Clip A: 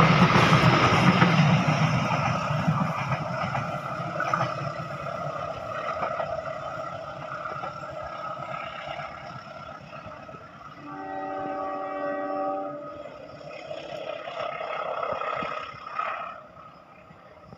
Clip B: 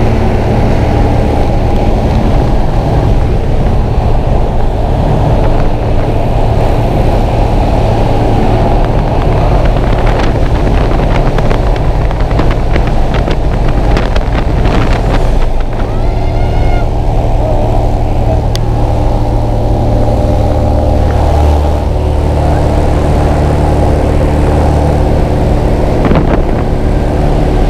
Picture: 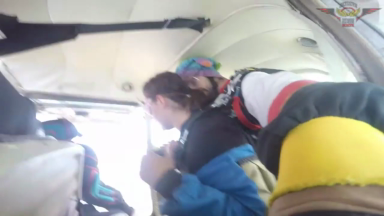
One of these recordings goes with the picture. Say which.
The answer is B